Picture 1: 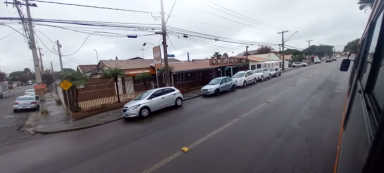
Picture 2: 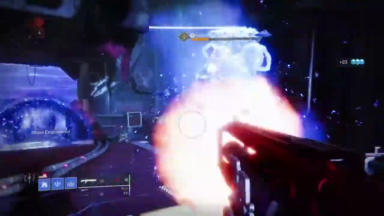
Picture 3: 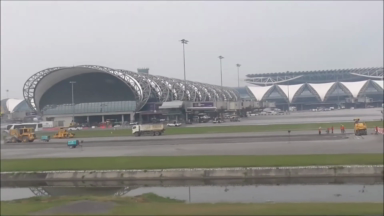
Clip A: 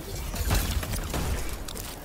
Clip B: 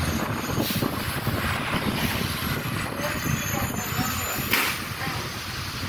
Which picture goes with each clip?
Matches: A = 2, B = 1